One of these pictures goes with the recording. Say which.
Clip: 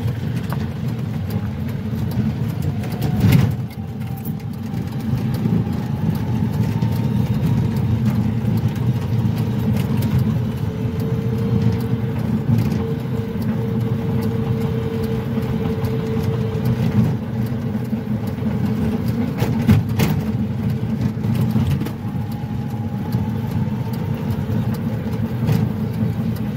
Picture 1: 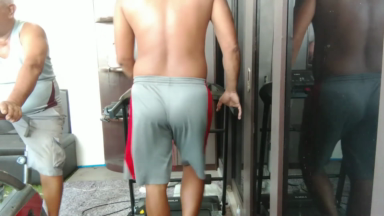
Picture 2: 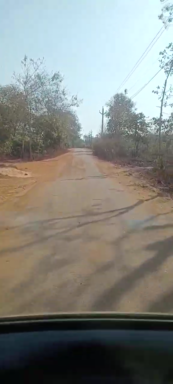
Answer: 2